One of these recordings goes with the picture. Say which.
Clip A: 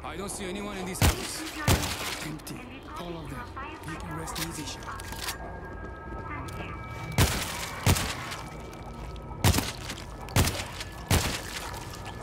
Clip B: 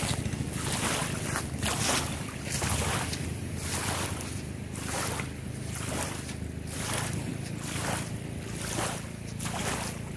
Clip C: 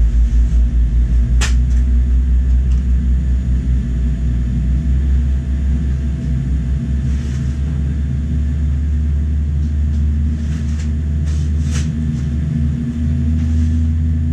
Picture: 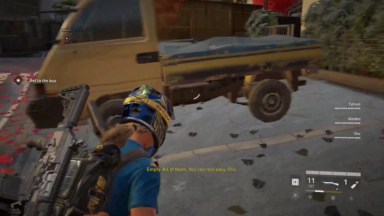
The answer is A